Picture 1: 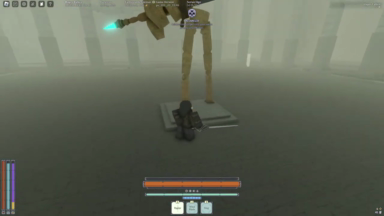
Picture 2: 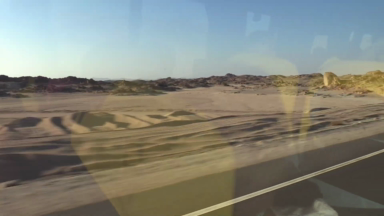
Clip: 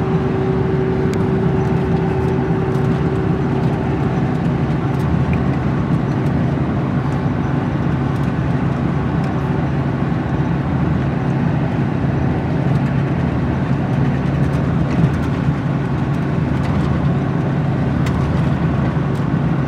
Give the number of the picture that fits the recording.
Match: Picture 2